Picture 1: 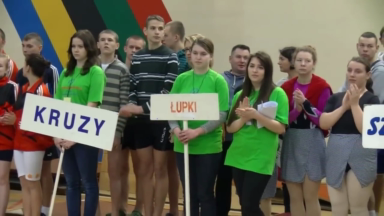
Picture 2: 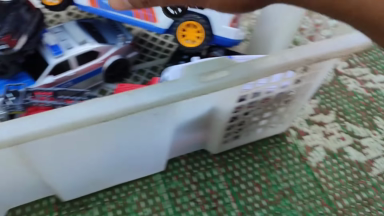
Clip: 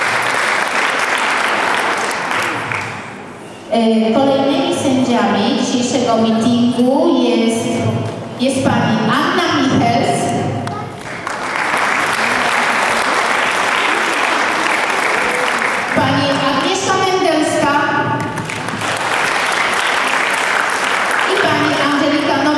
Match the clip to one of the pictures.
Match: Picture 1